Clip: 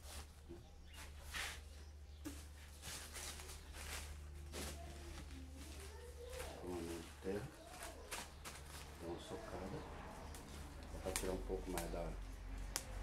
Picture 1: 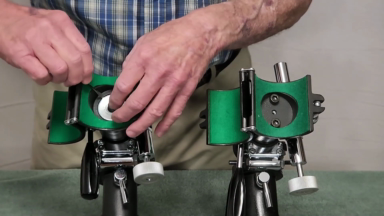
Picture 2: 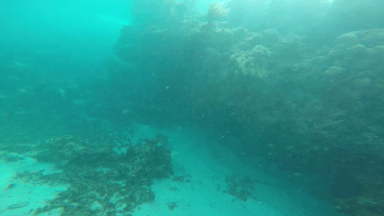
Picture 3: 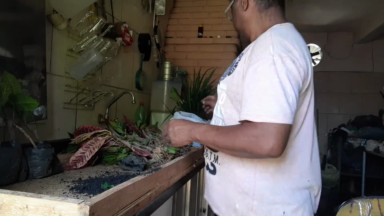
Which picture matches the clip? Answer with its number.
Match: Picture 3